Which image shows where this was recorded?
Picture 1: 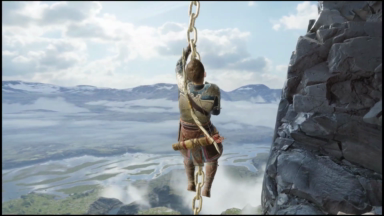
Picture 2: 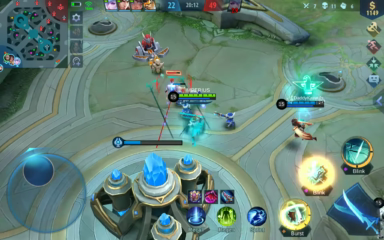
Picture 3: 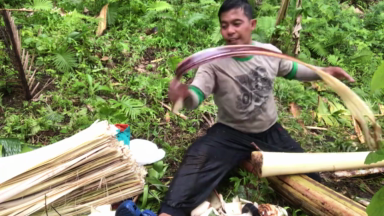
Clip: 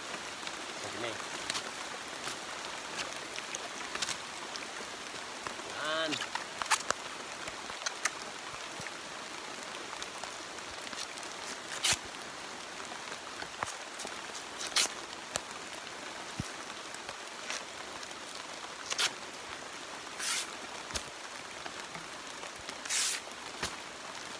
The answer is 3